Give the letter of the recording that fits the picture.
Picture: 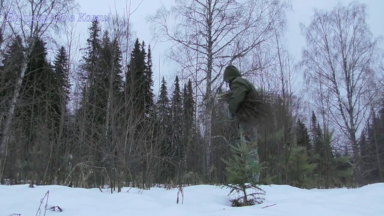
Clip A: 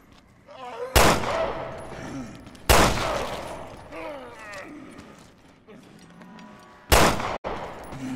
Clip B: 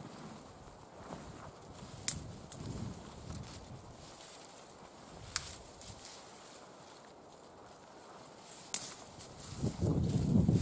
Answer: B